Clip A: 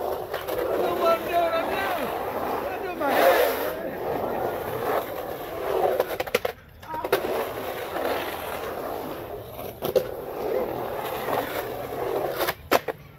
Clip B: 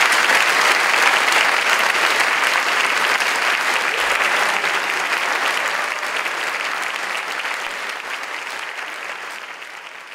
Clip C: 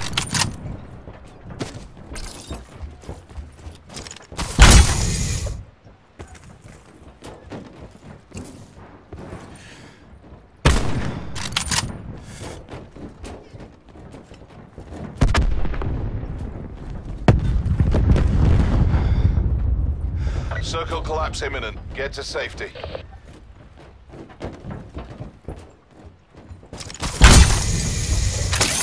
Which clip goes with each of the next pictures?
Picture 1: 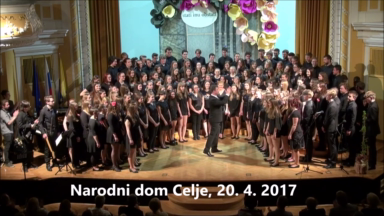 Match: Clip B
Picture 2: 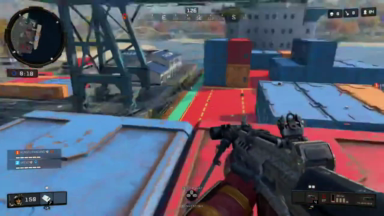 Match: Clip C